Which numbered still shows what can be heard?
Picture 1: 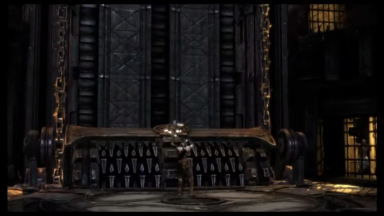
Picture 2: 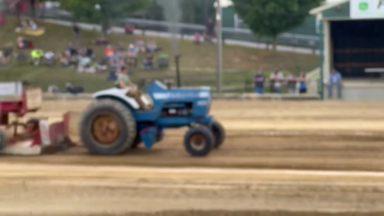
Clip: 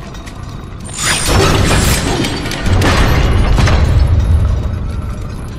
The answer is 1